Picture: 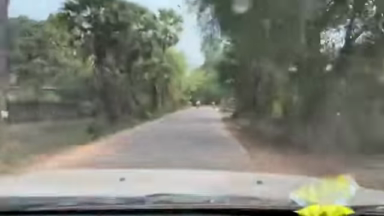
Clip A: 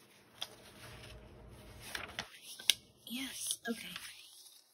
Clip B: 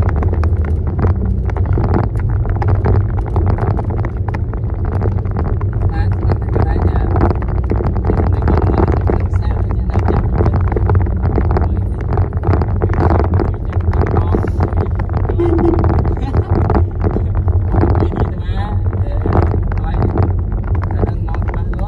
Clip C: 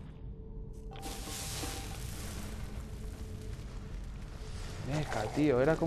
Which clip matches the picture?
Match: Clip B